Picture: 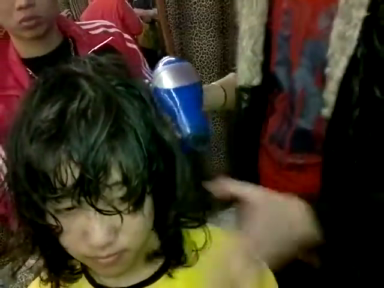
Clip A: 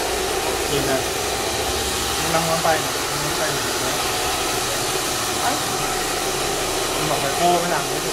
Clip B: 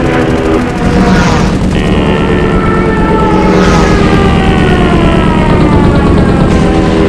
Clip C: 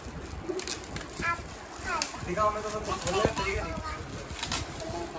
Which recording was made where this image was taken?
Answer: A